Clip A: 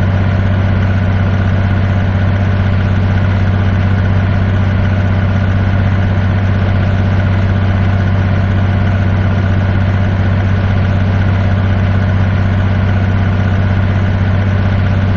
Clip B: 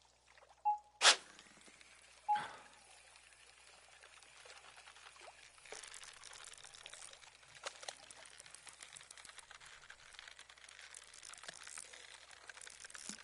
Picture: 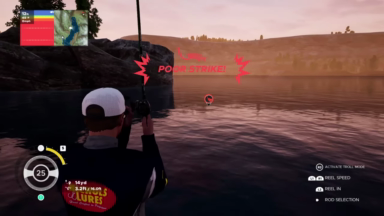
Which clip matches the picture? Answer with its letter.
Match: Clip B